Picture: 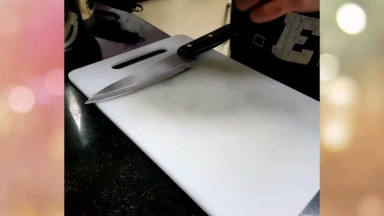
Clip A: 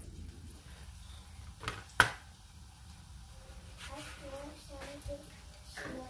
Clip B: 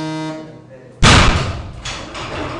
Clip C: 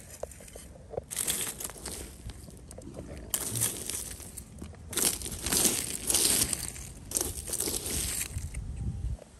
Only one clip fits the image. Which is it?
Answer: A